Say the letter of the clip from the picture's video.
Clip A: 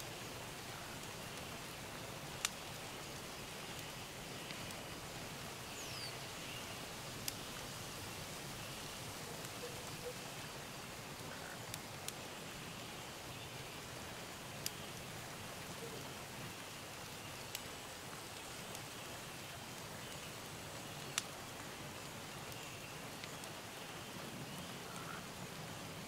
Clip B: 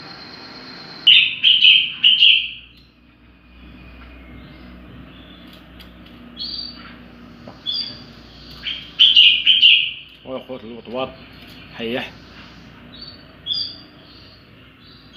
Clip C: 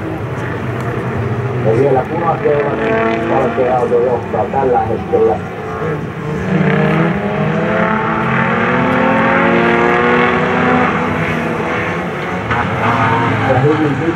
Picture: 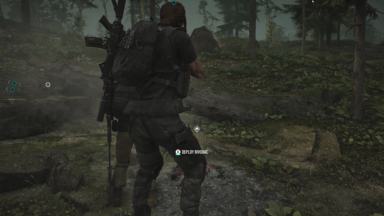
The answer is A